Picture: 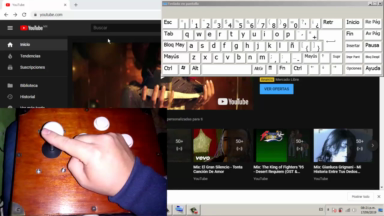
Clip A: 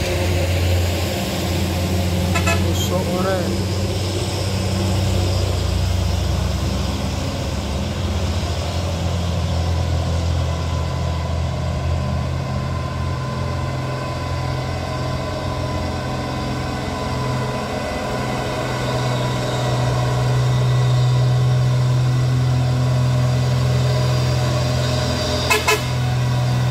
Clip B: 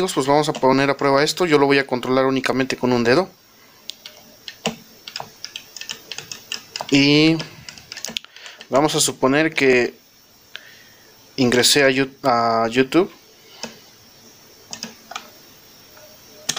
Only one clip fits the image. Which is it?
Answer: B